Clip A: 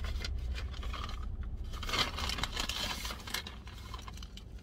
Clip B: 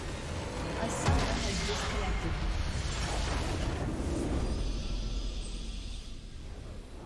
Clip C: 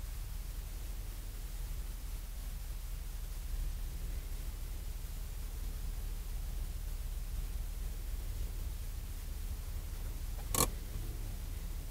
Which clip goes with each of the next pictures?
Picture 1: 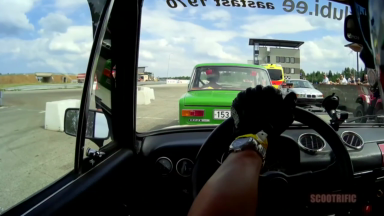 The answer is C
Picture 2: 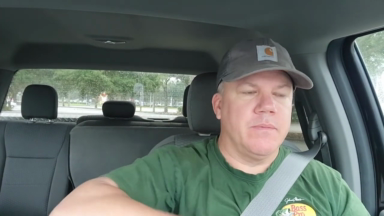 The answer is A